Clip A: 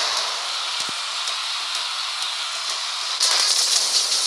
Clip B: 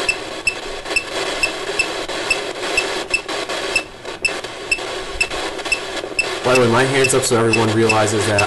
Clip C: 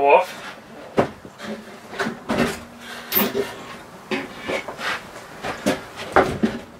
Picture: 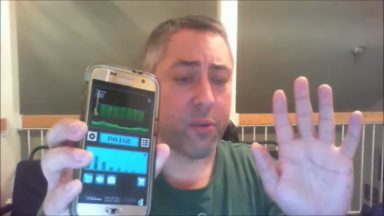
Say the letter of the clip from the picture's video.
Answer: B